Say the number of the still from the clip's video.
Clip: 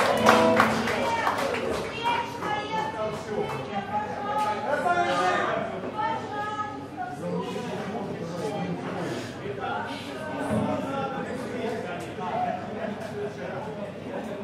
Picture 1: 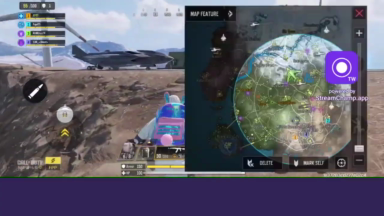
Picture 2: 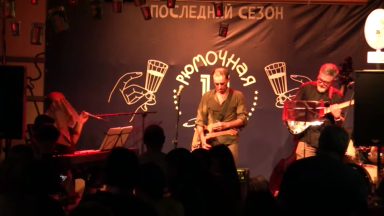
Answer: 2